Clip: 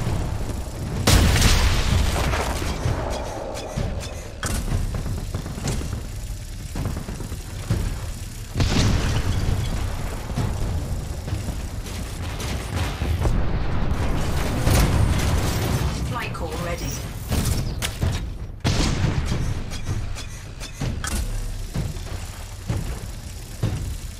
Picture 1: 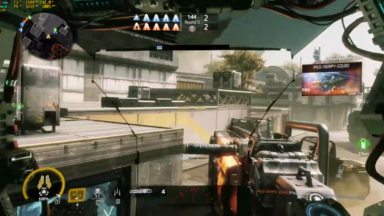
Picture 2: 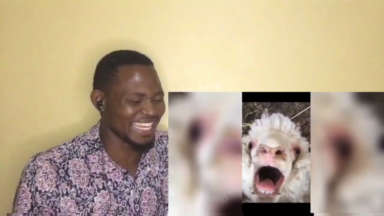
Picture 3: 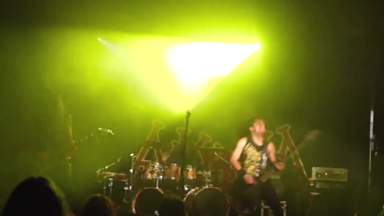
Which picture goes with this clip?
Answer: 1